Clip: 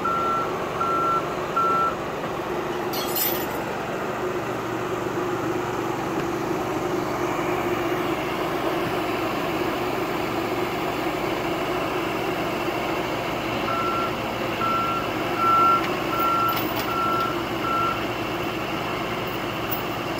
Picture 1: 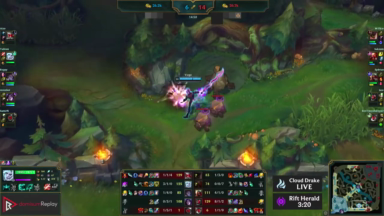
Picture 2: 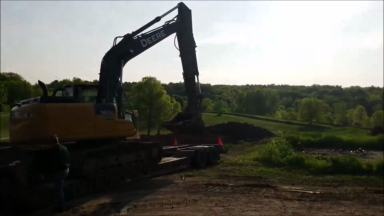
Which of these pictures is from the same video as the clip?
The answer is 2